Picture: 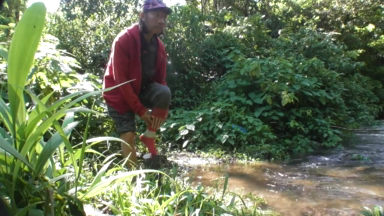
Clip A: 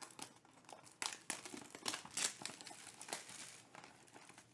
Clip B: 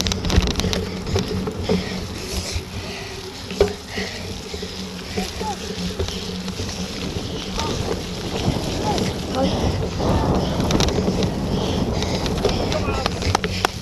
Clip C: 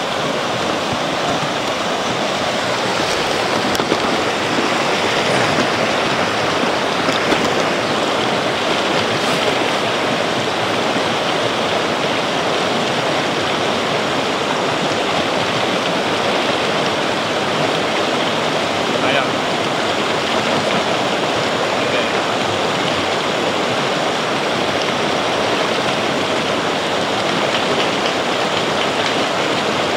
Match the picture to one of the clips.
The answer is C